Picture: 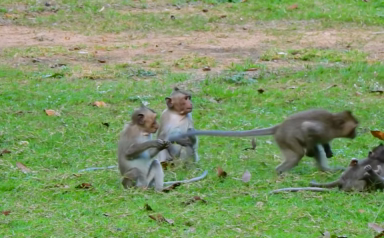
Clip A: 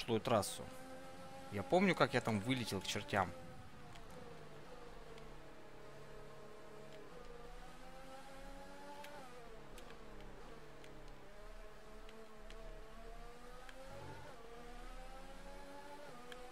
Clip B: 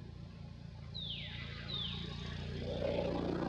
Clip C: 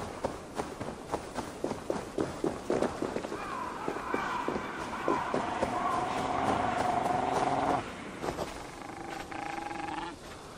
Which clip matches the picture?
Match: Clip B